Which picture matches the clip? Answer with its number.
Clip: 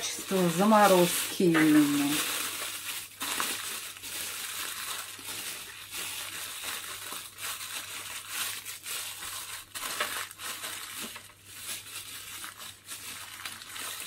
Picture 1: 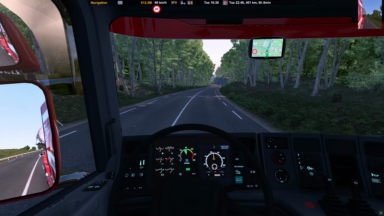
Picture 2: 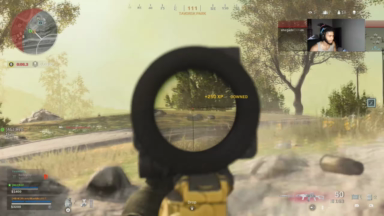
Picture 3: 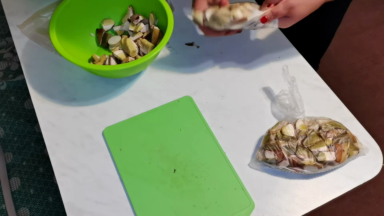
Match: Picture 3